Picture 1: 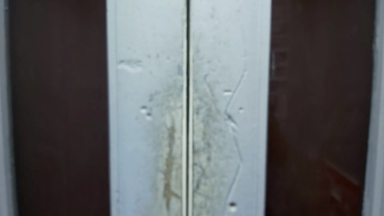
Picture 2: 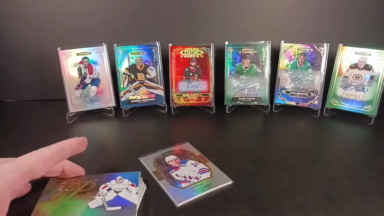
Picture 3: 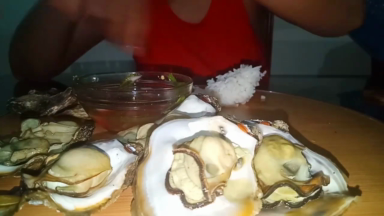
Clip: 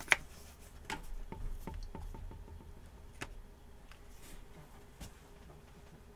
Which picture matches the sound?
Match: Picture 2